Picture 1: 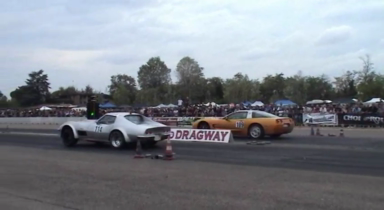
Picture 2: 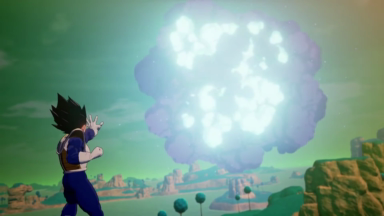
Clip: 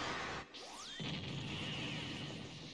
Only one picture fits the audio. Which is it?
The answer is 2